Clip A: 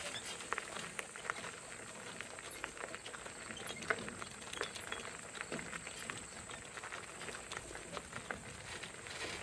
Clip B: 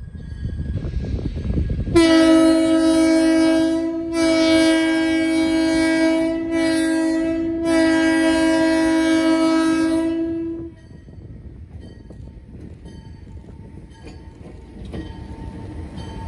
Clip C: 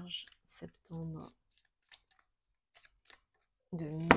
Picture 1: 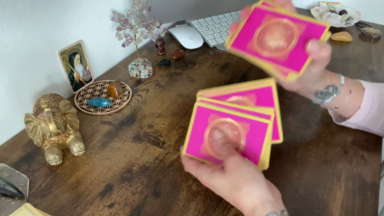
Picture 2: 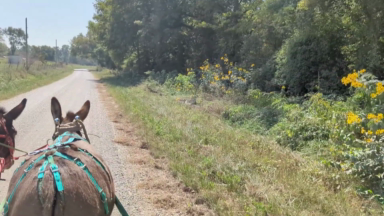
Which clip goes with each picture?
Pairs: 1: C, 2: A